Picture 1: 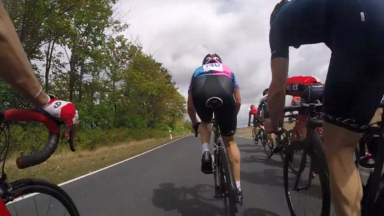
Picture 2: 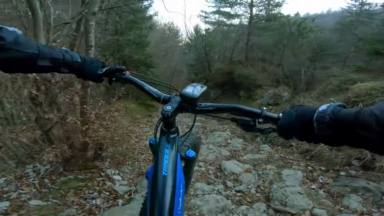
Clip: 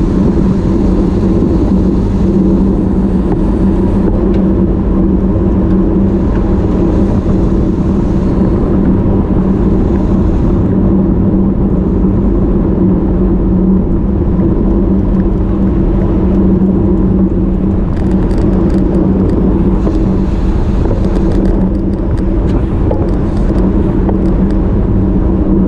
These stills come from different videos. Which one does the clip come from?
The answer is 1